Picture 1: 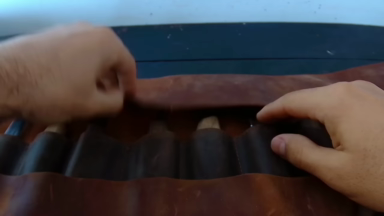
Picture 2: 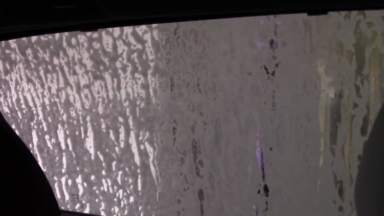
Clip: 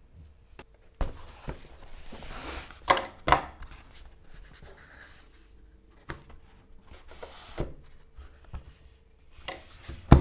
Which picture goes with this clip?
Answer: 1